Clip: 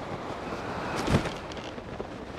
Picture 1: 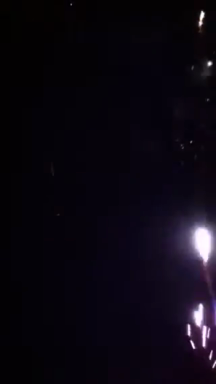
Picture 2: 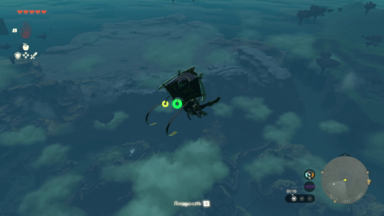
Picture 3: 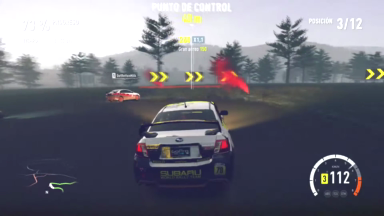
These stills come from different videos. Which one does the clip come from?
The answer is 2